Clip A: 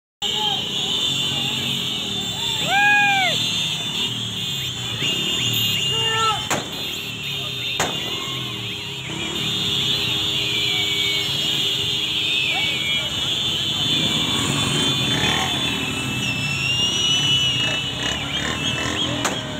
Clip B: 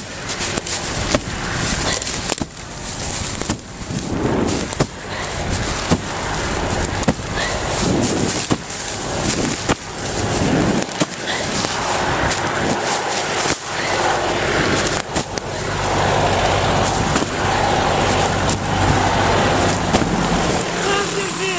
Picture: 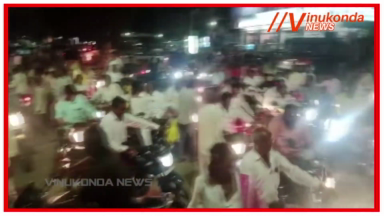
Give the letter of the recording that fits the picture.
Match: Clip A